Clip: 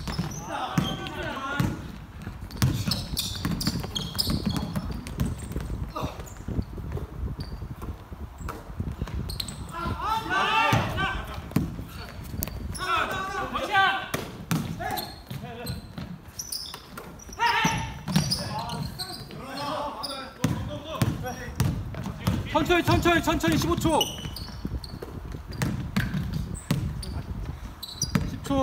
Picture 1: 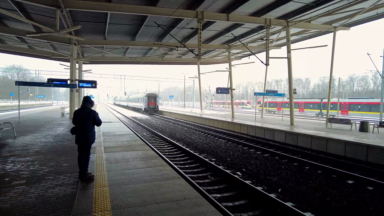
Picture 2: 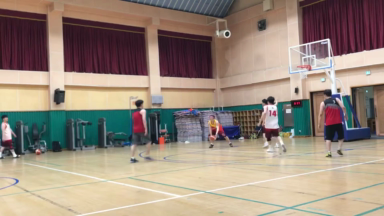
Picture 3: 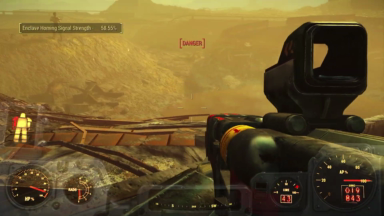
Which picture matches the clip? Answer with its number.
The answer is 2